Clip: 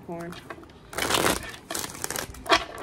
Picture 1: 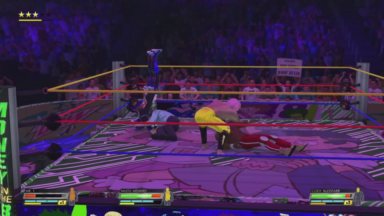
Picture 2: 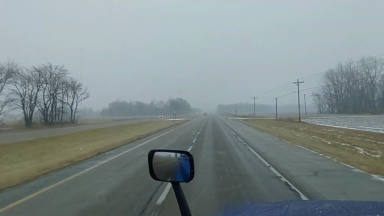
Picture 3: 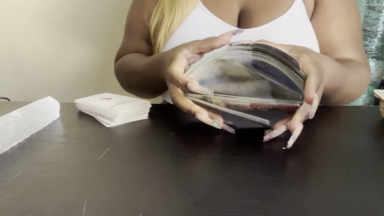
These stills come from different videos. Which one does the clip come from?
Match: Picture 3